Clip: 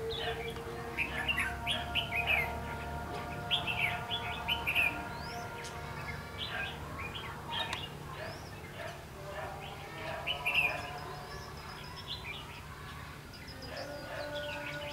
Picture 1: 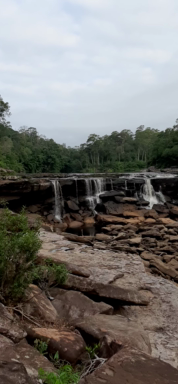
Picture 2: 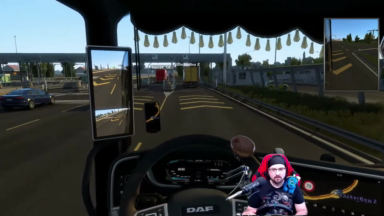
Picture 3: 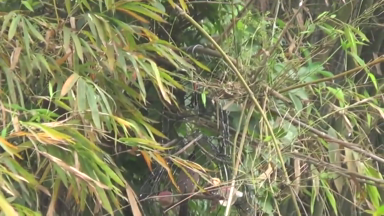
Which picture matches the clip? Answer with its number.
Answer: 3